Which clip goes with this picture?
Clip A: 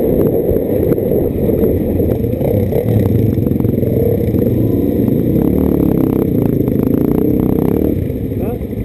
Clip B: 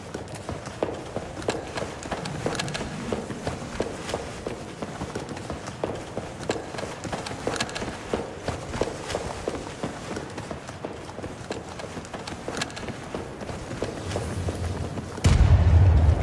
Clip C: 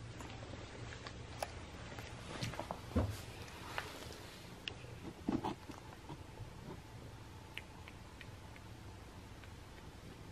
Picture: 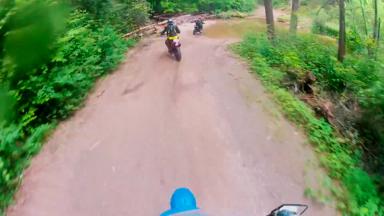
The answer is A